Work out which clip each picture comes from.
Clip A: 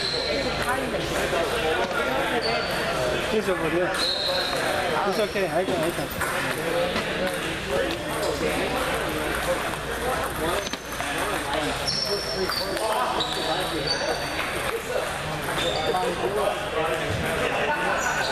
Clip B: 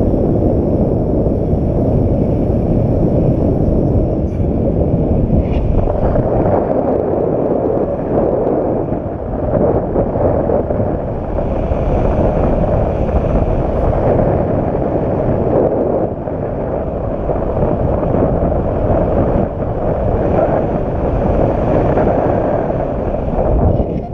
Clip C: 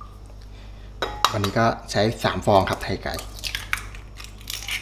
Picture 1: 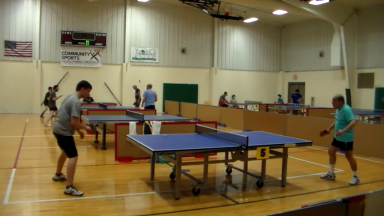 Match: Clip A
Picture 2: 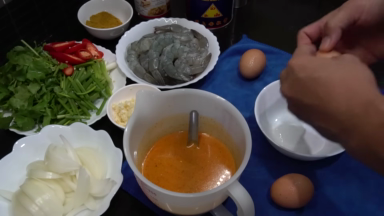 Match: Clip C